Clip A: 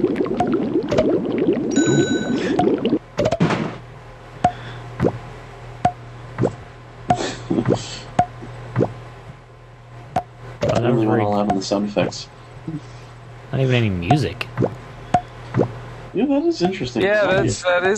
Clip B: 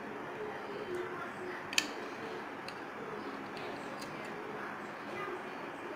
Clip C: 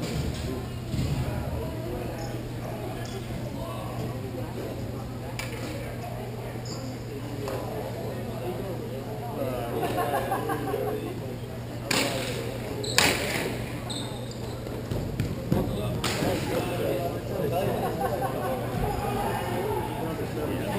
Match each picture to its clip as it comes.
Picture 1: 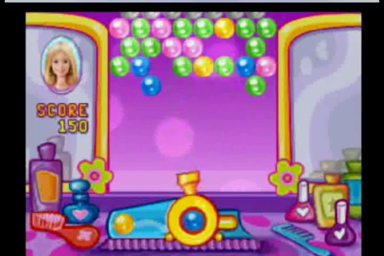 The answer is A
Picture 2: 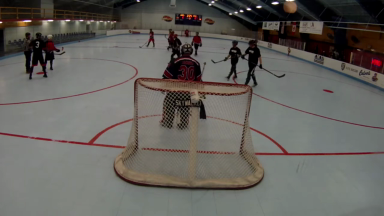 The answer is C